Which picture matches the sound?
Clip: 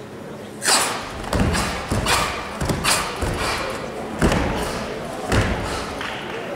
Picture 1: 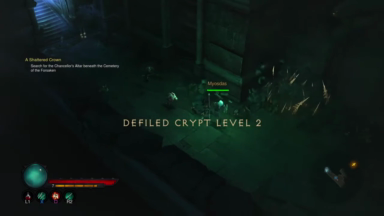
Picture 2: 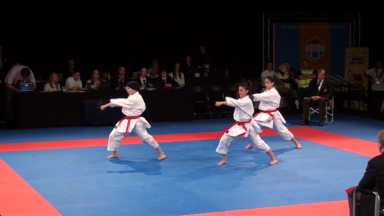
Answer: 2